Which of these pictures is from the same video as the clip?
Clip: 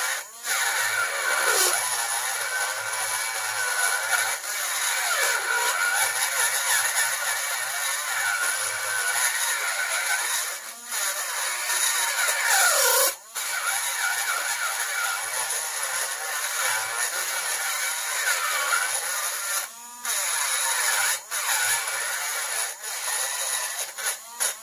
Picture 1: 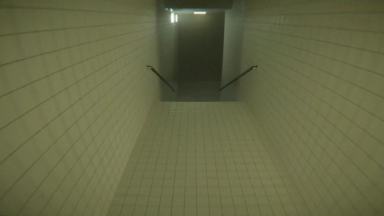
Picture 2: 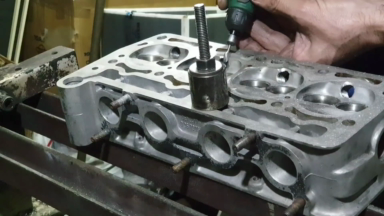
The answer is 2